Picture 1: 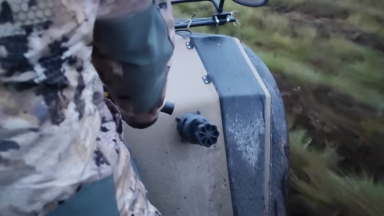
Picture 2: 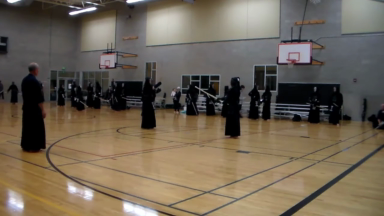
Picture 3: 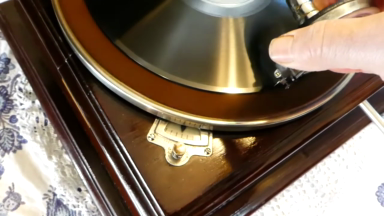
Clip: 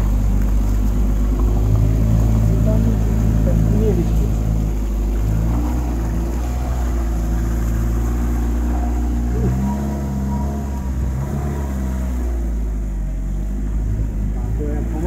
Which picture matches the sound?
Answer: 1